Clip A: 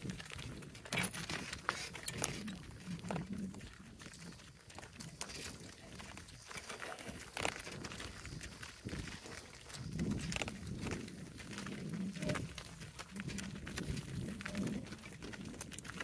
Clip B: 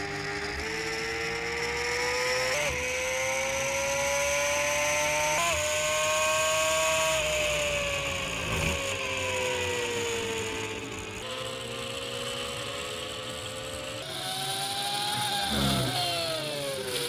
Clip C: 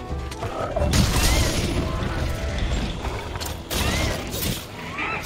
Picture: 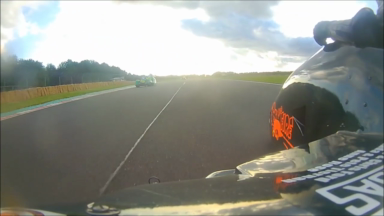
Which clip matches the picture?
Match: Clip B